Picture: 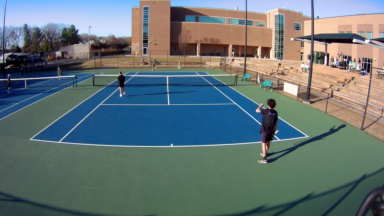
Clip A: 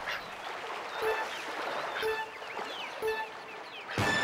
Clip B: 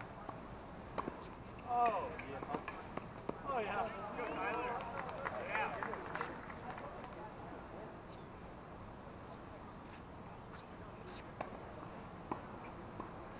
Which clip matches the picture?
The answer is B